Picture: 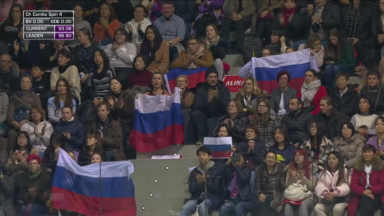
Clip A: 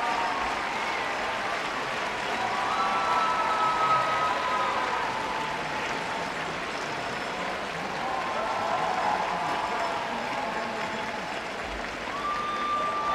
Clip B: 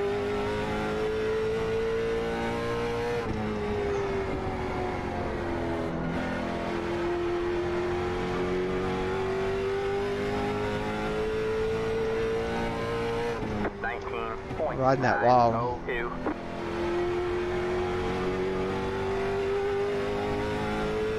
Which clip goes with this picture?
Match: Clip A